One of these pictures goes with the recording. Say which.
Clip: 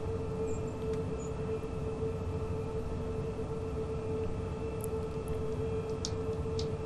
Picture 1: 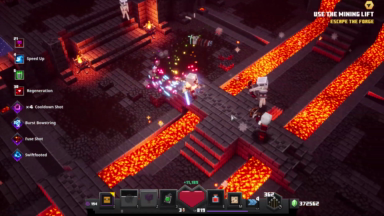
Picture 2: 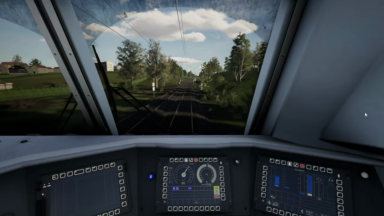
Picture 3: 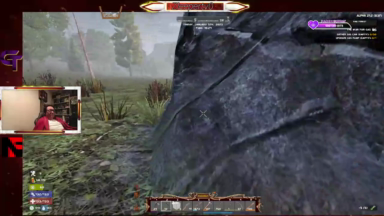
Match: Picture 2